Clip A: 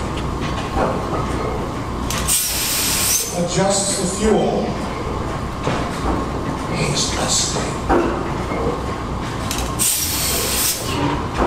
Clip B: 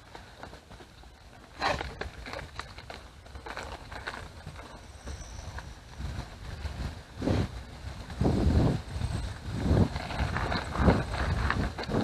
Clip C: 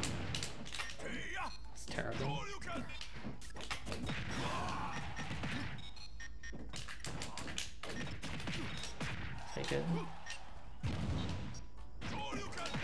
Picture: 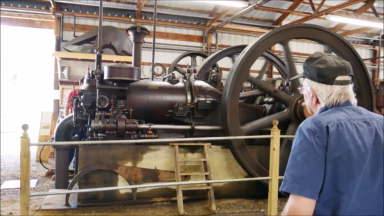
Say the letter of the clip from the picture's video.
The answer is A